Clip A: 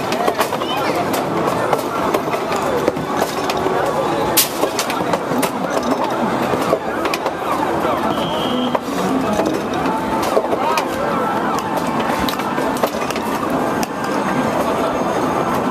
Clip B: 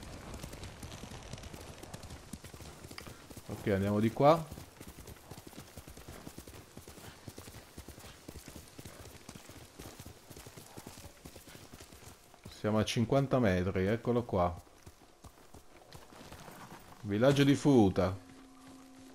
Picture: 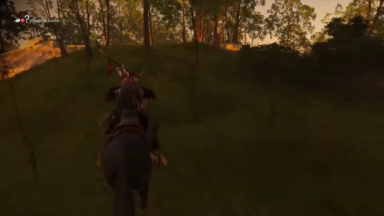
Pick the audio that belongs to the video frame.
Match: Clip B